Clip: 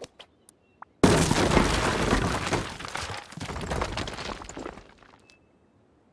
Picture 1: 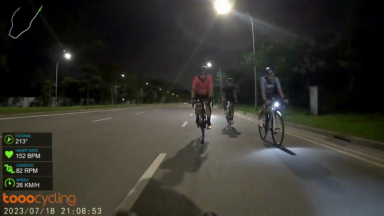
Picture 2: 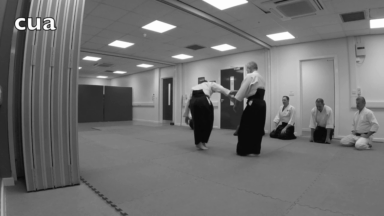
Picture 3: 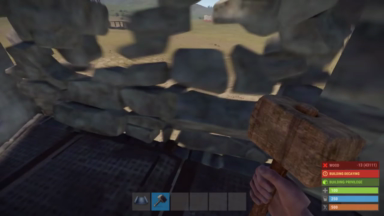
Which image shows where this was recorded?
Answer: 3